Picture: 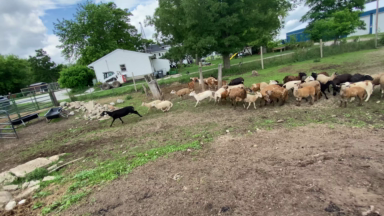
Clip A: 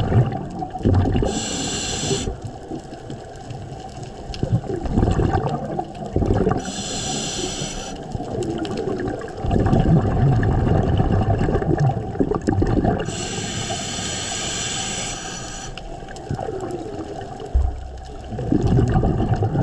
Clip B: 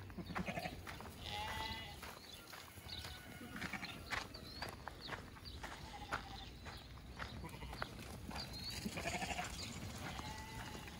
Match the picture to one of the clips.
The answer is B